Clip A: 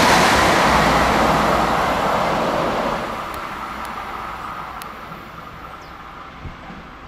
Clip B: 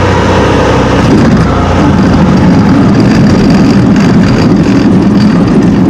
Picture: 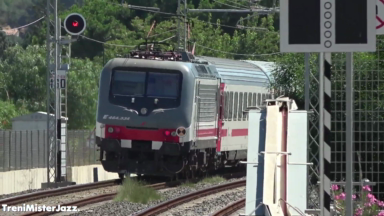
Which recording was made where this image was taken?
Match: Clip A